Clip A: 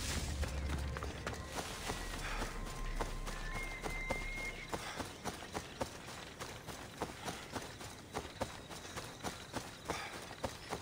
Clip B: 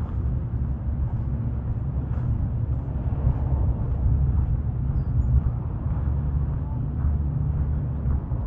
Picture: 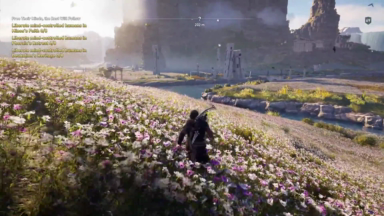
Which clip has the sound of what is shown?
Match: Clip A